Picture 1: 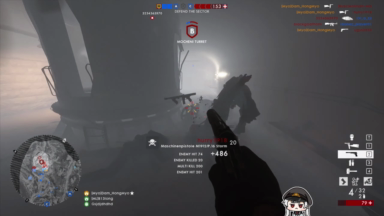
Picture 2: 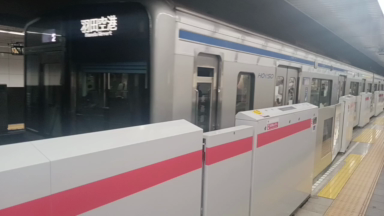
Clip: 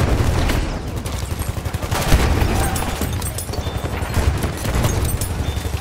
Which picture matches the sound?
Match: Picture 1